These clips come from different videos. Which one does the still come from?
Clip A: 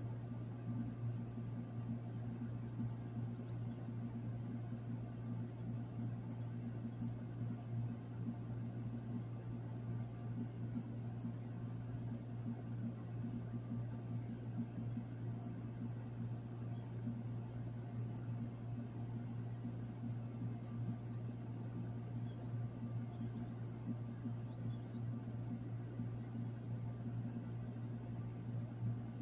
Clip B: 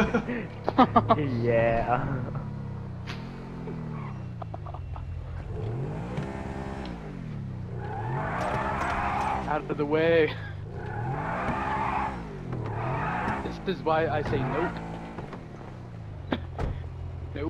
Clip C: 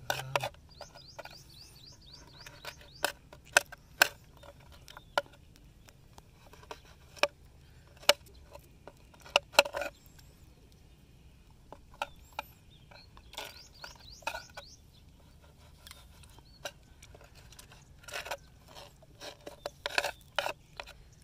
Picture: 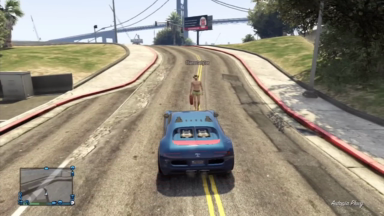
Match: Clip B